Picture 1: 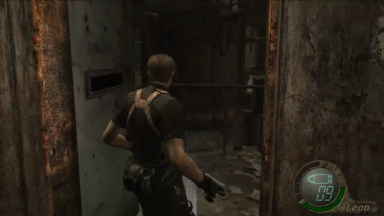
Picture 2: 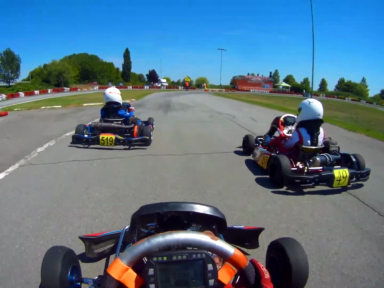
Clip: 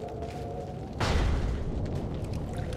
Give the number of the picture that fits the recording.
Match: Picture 1